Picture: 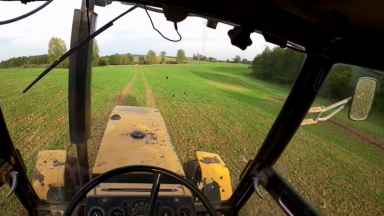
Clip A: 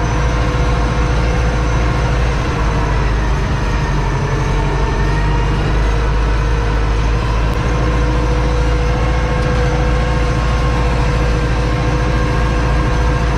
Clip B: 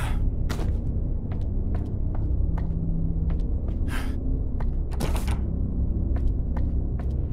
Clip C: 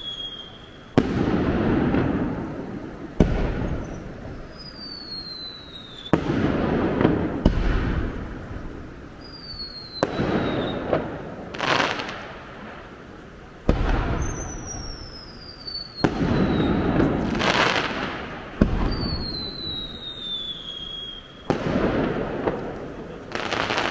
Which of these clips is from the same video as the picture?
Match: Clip A